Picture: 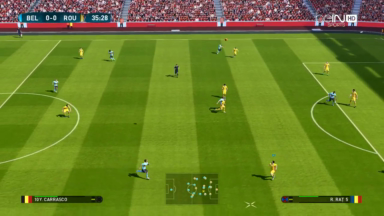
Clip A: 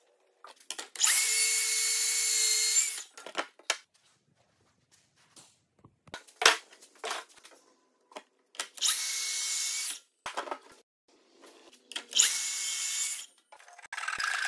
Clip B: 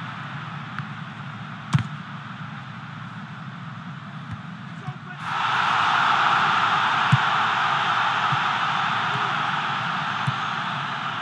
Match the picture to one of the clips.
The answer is B